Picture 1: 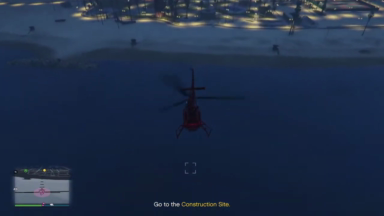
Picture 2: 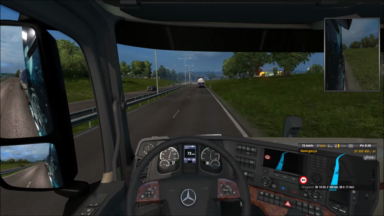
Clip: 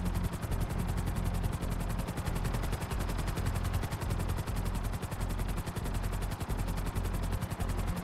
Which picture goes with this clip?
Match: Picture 1